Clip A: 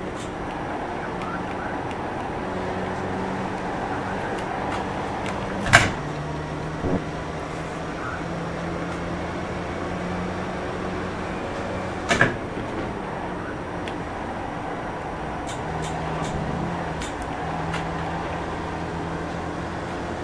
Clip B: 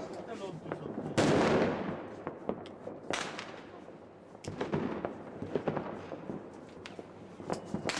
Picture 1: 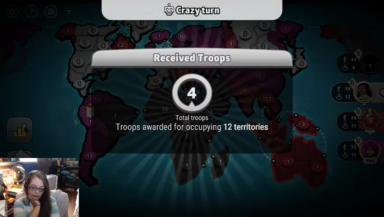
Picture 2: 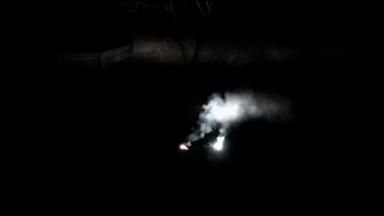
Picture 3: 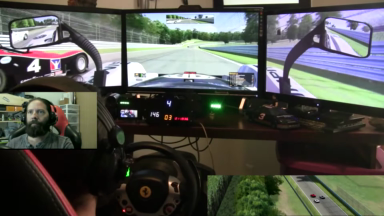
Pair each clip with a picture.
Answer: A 3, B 2